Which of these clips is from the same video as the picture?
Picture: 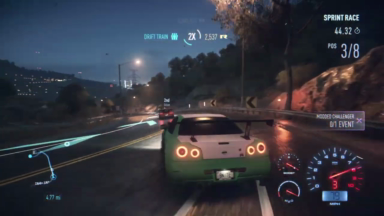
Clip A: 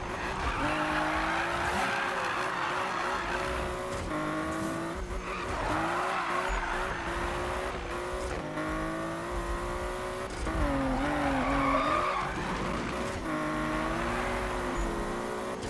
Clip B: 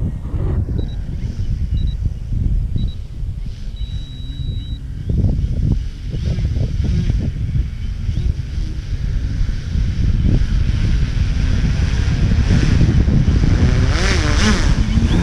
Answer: A